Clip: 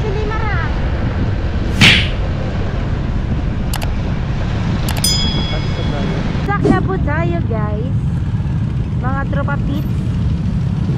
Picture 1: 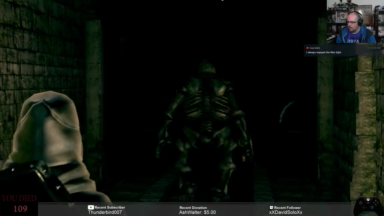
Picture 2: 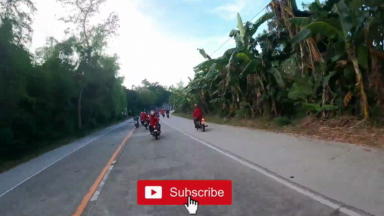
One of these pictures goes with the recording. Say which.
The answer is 2